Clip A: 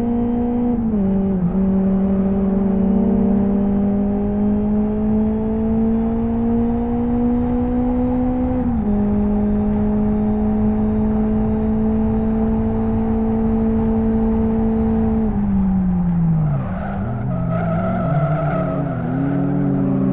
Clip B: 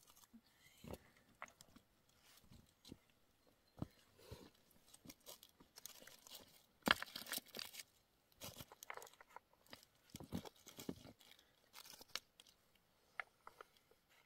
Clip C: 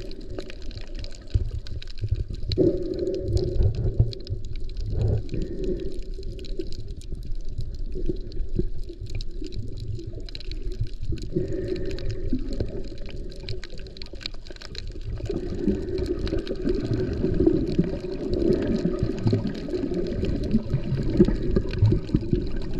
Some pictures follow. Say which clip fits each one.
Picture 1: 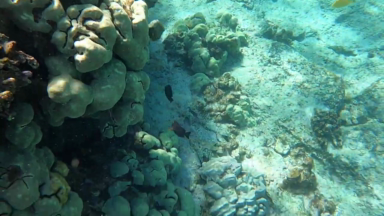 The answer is C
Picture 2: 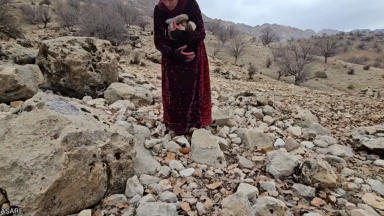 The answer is B